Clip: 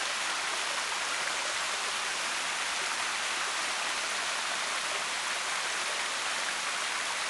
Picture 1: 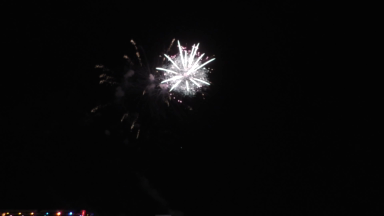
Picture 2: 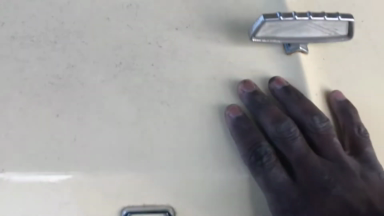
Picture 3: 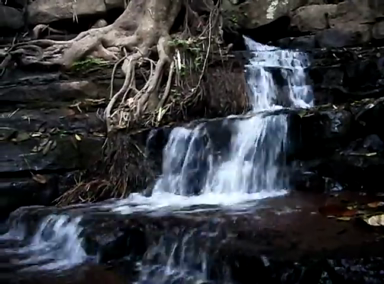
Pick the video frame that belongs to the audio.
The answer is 3